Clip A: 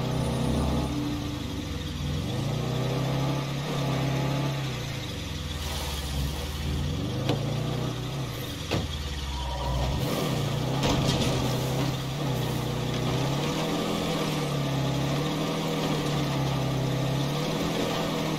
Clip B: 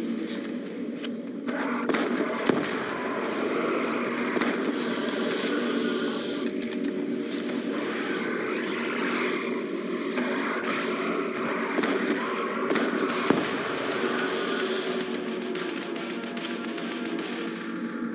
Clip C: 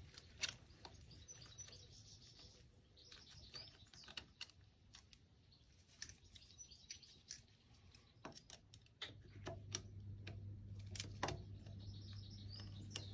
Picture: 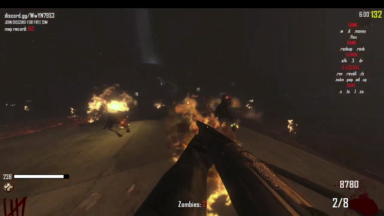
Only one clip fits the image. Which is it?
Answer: B